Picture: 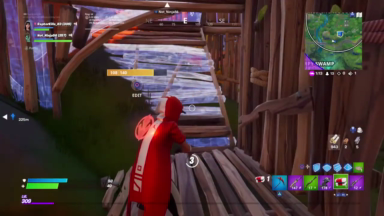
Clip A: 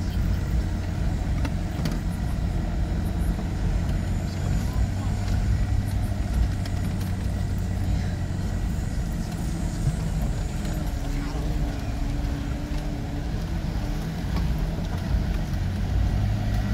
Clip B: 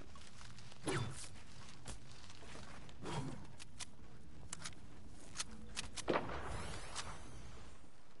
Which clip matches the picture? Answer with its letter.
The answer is B